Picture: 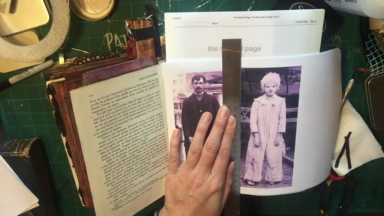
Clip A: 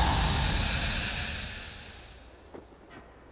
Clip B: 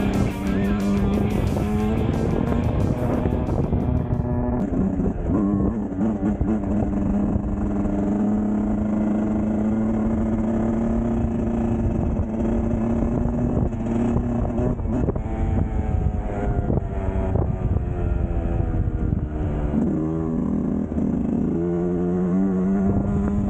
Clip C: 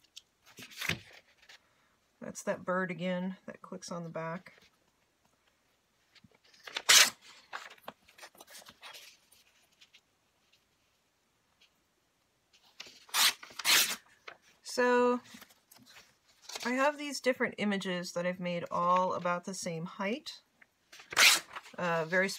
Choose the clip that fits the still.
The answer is C